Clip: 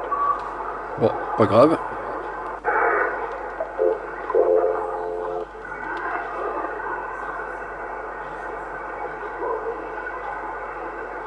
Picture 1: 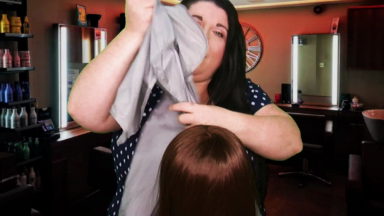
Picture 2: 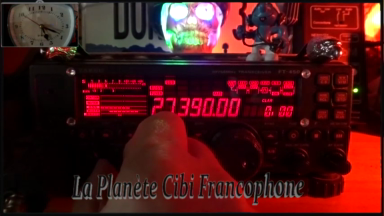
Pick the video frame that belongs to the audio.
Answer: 2